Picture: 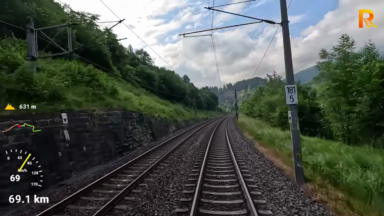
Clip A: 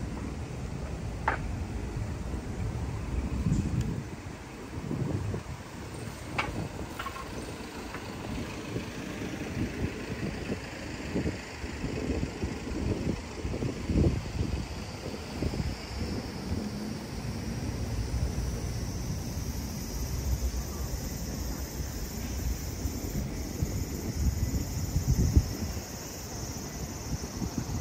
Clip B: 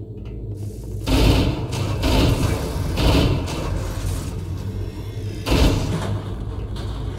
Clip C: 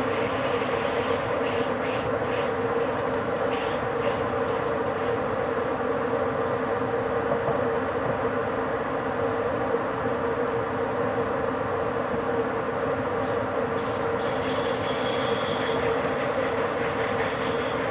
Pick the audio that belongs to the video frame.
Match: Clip C